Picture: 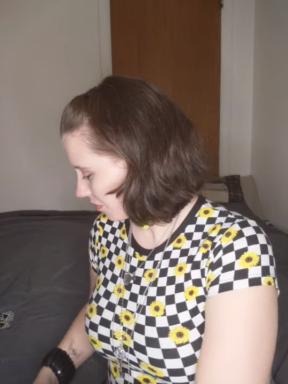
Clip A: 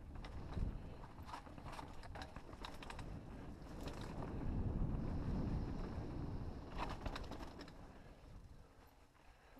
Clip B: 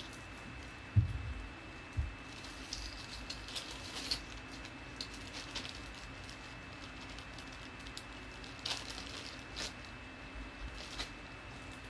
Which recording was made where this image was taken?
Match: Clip B